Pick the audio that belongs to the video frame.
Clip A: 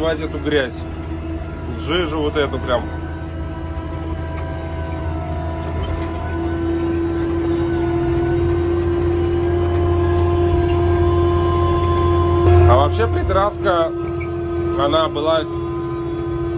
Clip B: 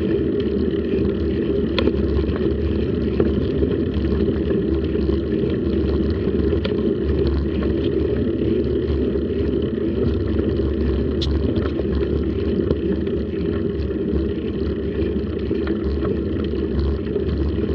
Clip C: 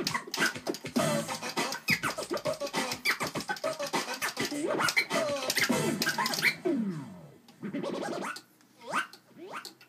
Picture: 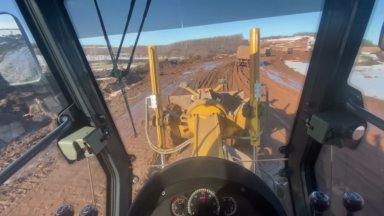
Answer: A